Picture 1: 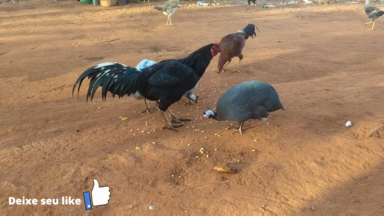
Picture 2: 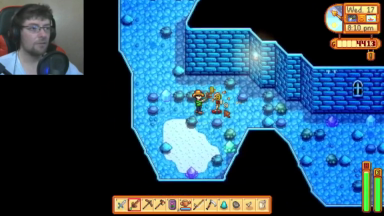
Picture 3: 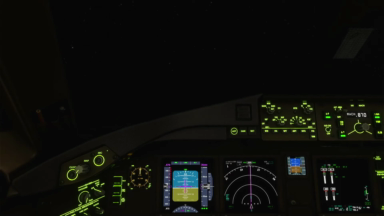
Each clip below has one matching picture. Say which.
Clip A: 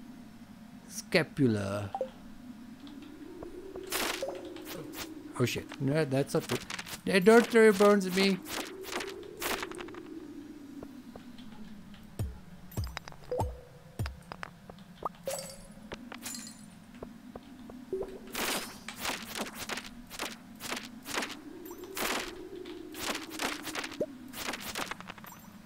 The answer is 2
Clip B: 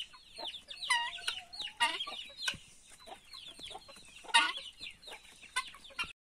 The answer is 1